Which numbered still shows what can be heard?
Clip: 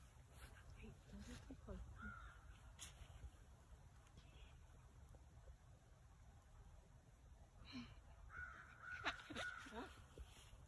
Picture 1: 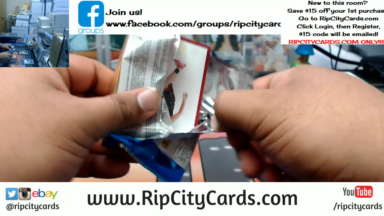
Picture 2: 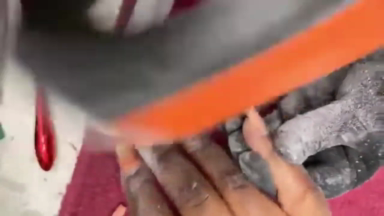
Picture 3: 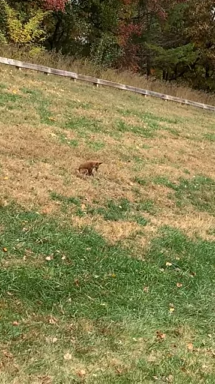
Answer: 3